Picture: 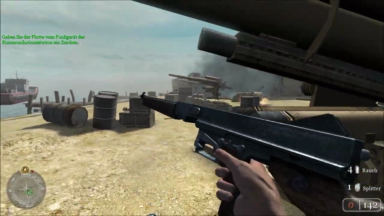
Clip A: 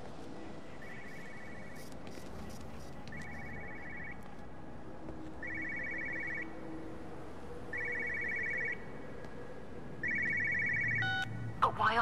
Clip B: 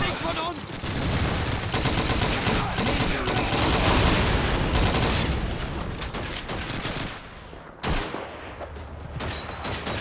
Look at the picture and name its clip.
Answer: B